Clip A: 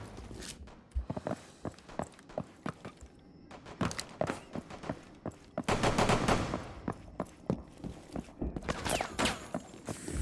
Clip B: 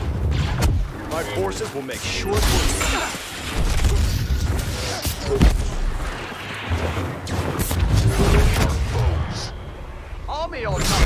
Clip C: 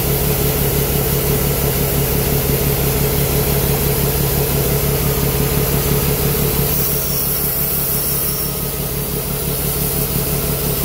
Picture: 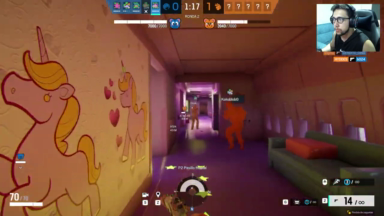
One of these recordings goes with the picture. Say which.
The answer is A